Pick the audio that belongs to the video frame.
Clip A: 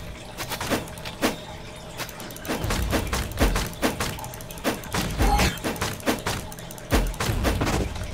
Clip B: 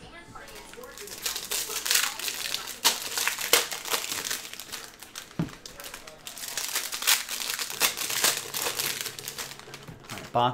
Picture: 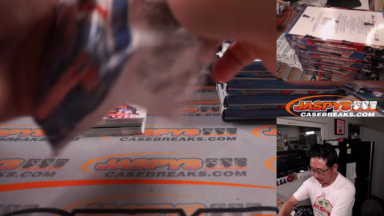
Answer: B